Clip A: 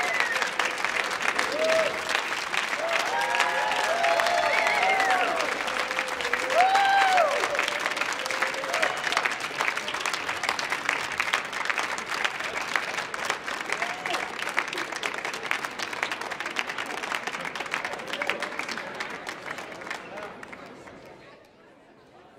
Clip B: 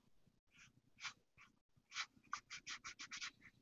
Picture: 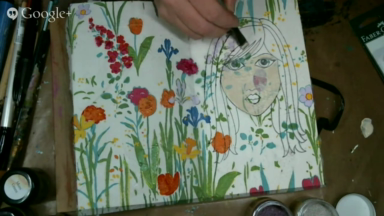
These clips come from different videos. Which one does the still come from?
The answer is B